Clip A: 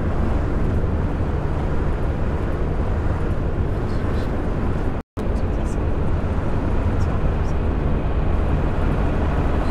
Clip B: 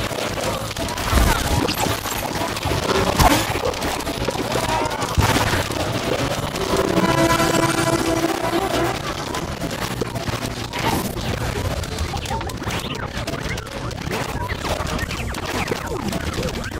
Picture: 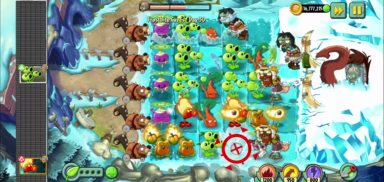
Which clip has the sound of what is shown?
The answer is B